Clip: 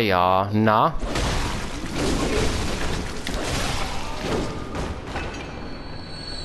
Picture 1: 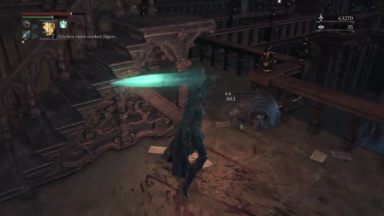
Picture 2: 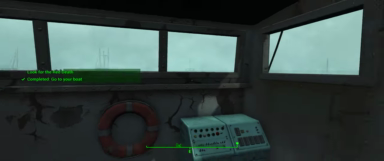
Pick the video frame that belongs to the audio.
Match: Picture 1